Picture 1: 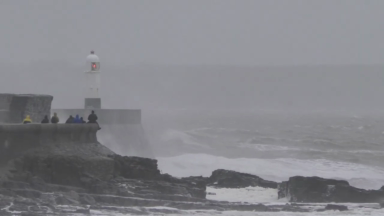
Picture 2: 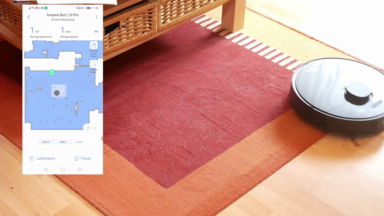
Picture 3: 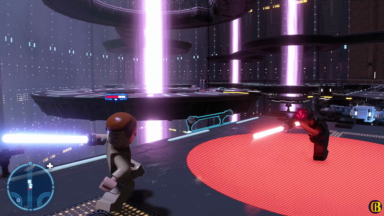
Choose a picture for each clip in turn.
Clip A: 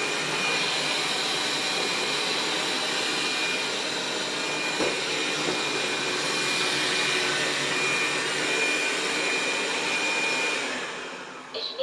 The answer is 2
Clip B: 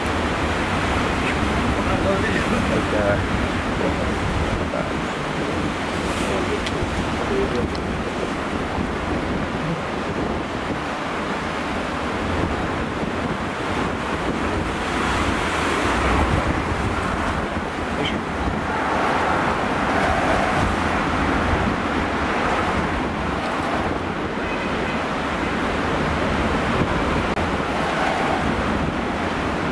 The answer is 1